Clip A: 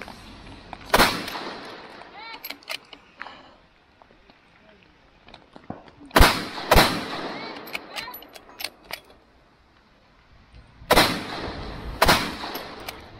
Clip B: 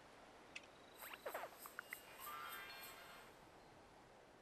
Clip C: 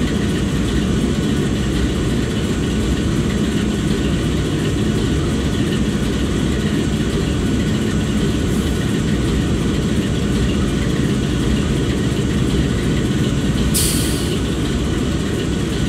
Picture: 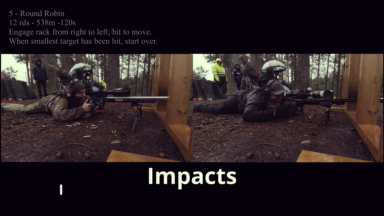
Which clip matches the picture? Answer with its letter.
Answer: A